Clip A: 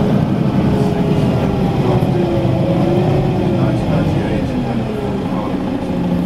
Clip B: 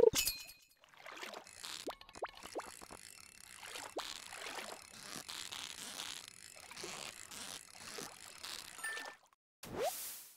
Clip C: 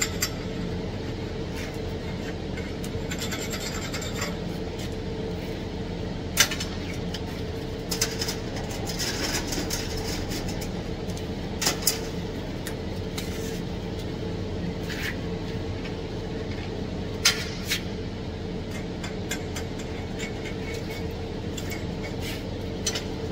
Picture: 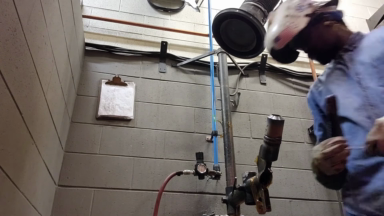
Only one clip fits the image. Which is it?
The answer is C